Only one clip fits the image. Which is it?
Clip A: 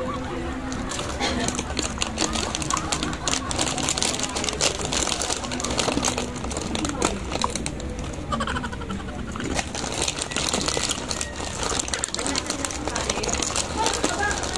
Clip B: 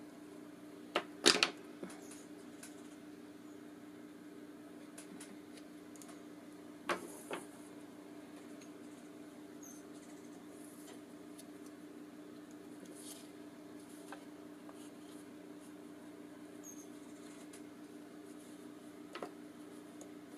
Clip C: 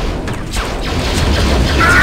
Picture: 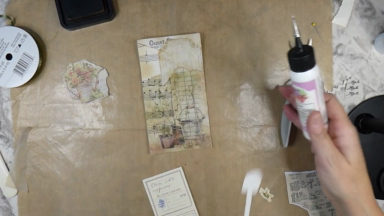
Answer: B